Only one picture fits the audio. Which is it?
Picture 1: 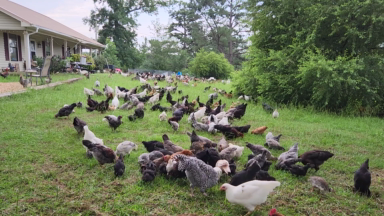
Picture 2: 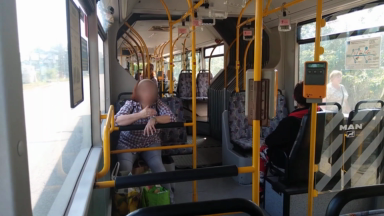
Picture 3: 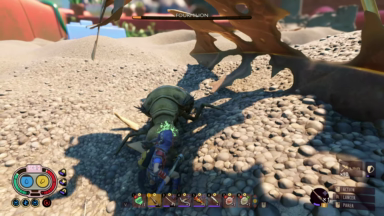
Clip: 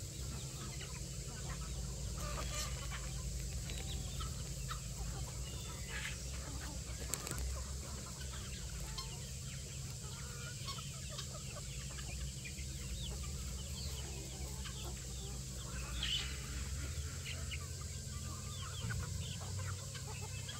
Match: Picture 1